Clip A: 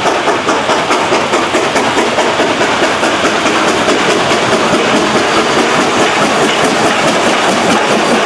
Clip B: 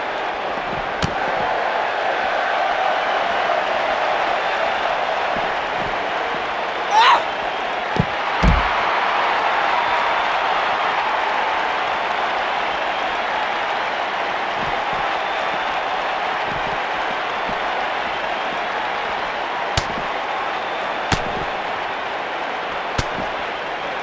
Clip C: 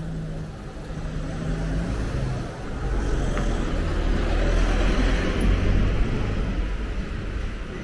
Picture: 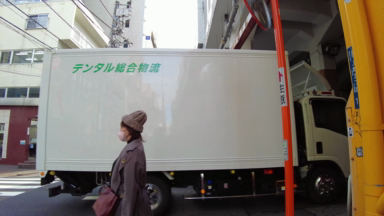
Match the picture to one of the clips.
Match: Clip C